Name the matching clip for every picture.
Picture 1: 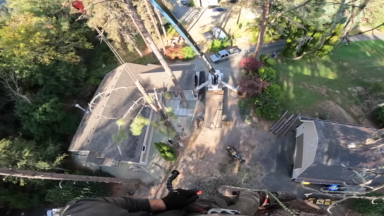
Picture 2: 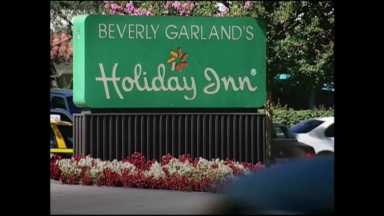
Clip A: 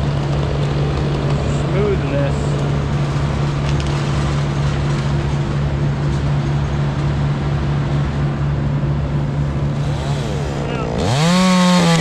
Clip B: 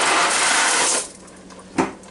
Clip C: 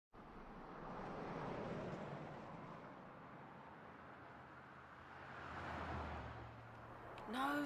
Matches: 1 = A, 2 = C